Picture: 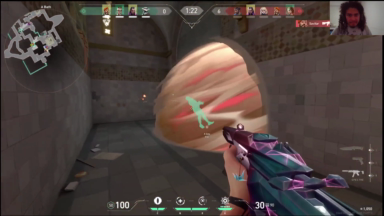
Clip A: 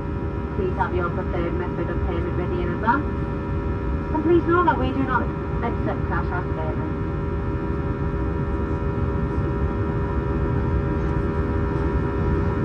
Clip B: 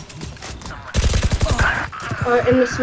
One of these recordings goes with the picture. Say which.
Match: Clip B